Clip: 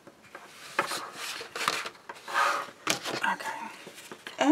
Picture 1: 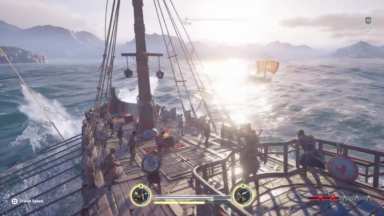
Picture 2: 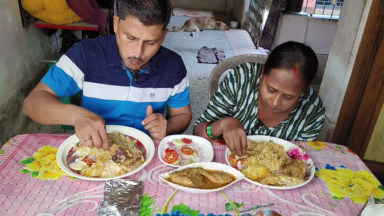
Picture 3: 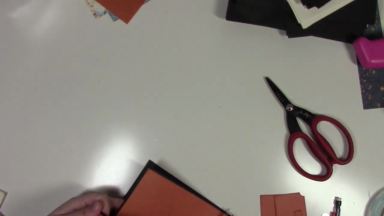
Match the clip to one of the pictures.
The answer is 3